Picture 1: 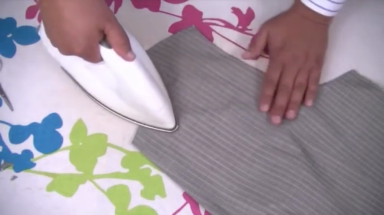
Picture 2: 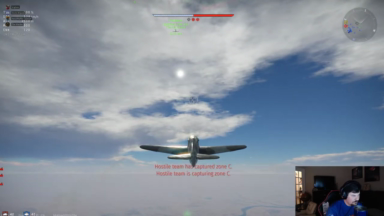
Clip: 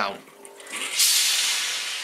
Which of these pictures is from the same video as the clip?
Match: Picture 1